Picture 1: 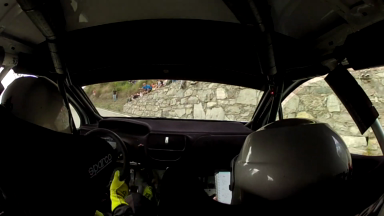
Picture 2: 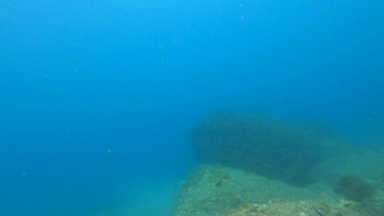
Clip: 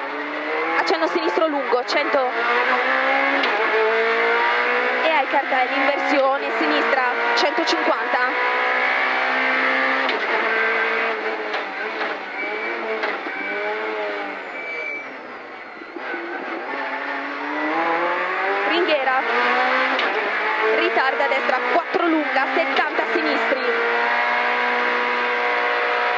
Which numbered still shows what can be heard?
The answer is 1